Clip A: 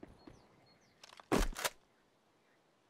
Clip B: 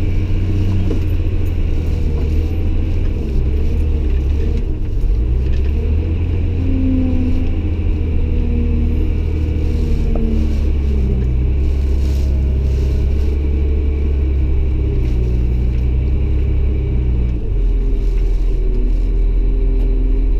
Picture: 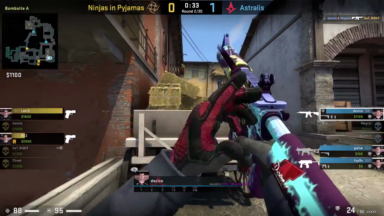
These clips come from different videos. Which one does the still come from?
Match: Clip A